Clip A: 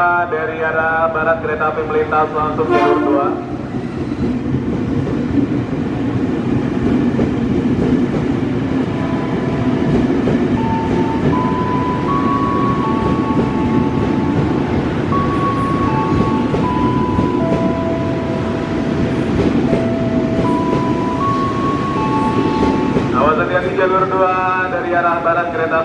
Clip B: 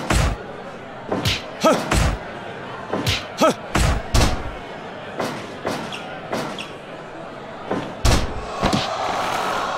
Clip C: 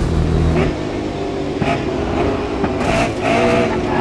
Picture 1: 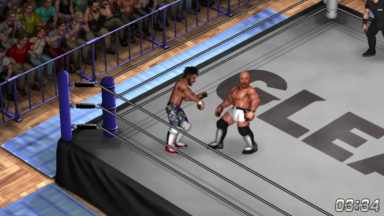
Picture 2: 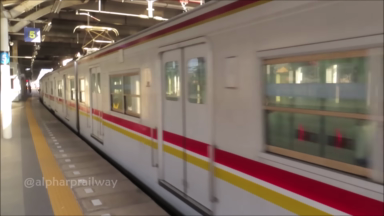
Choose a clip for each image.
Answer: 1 B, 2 A